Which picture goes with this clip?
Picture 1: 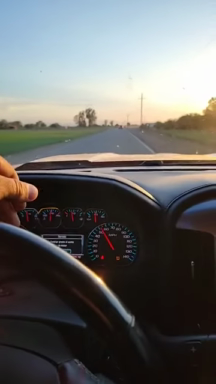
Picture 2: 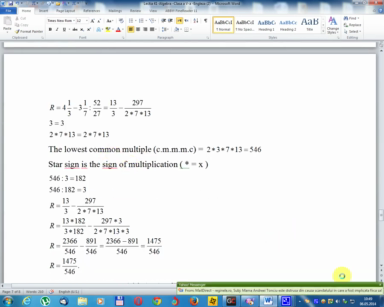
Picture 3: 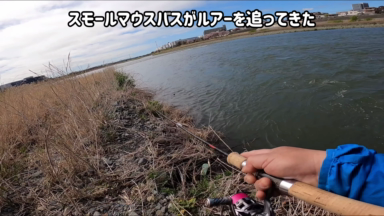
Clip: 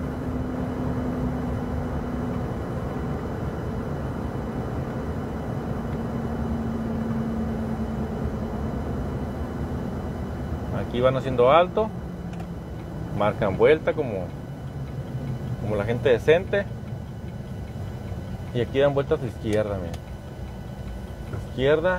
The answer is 1